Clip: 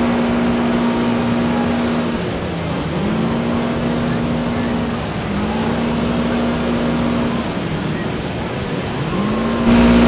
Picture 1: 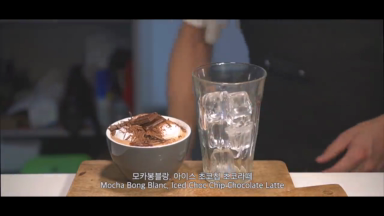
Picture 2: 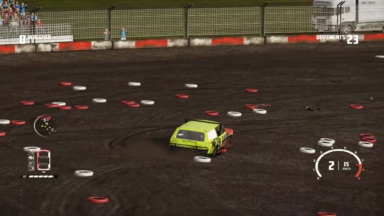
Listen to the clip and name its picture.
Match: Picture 2